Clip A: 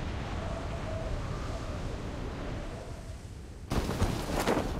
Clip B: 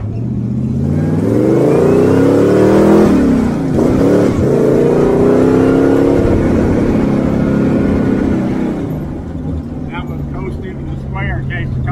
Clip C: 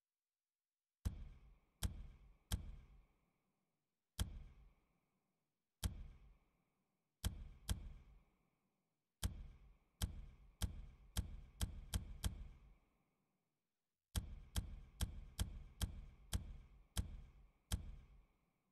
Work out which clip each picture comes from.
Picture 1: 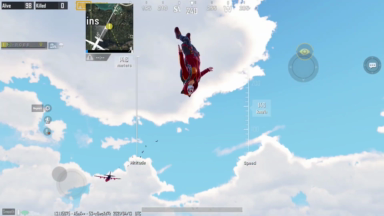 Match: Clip A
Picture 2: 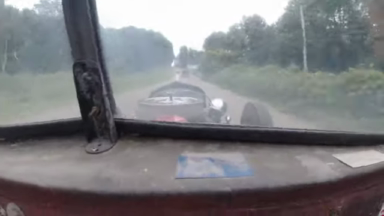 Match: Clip B